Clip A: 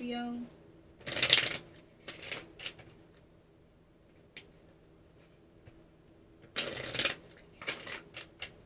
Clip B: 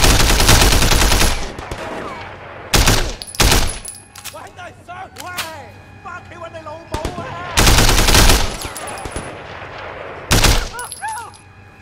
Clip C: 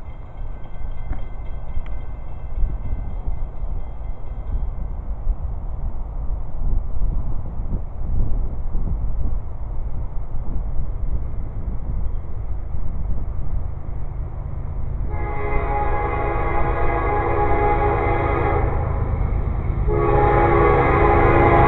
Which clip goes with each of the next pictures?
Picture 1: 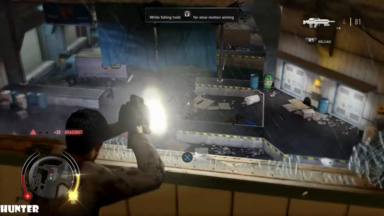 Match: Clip B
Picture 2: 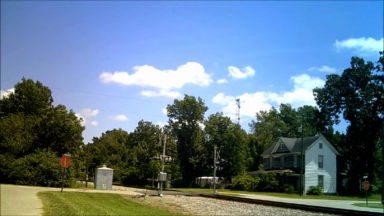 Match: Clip C